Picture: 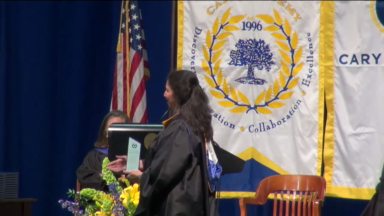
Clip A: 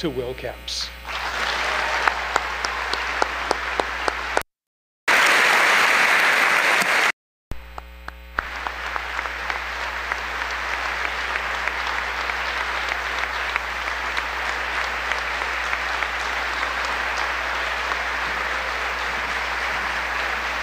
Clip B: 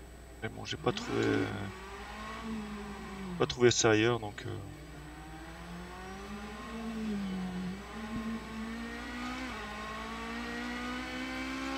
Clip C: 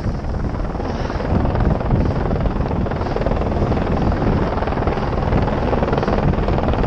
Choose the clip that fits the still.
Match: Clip A